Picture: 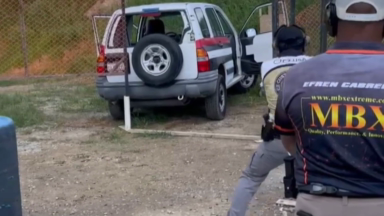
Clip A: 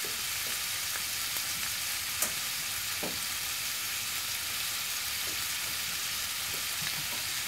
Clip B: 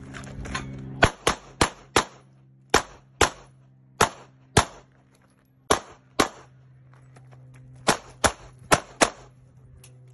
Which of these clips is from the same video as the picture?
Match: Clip B